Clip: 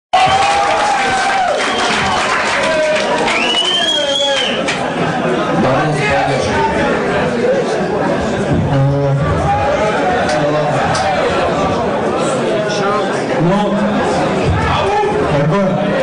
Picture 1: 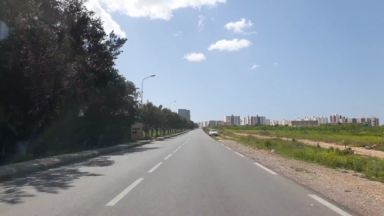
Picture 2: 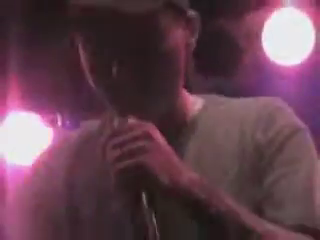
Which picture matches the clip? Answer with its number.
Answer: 2